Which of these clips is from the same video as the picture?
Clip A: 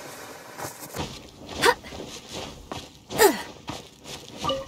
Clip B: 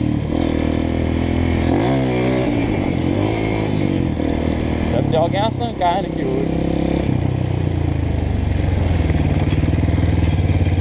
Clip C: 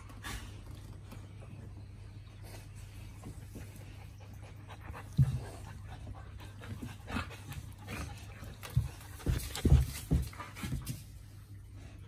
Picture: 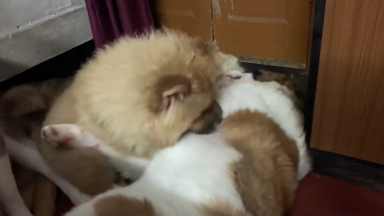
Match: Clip C